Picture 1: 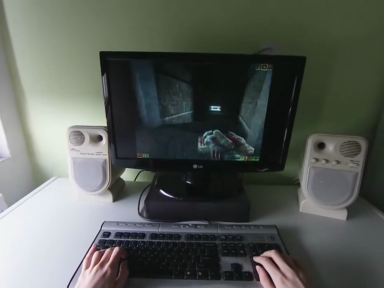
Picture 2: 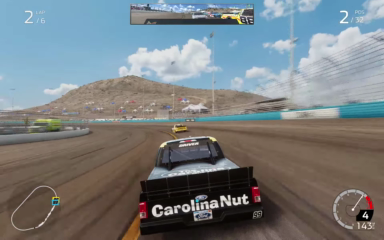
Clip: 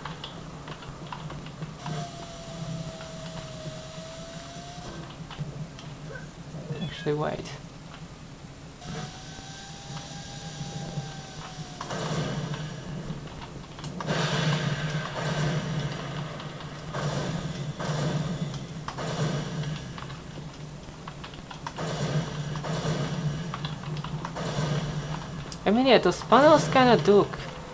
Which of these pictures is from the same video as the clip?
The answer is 1